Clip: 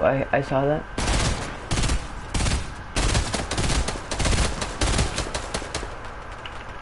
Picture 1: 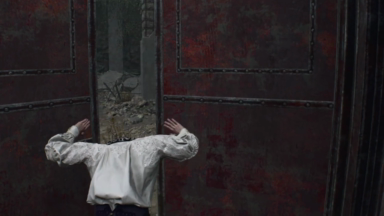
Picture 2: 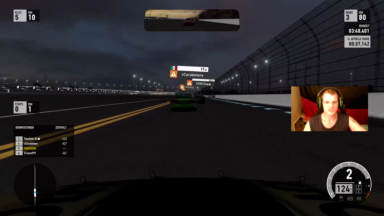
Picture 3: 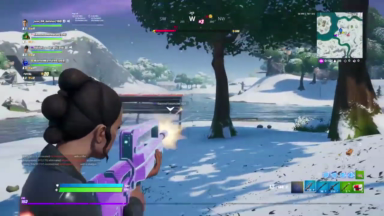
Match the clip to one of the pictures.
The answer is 3